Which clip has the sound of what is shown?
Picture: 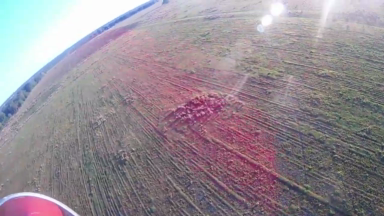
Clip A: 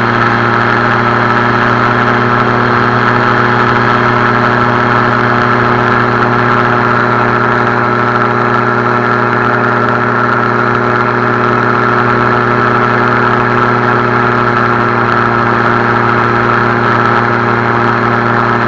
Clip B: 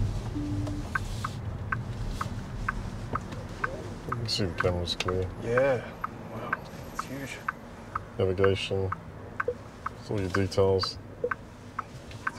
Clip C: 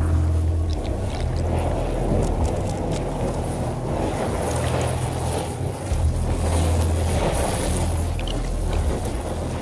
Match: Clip A